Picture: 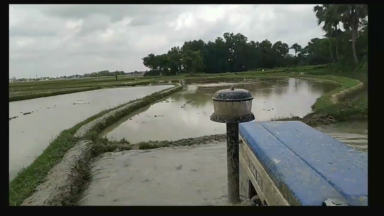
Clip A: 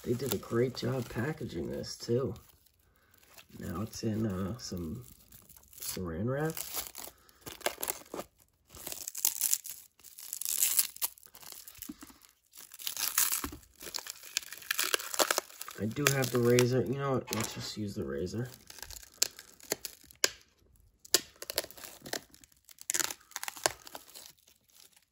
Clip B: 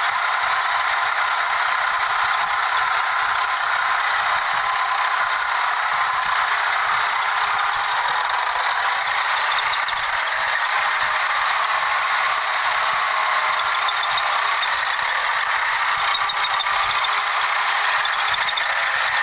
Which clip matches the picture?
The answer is B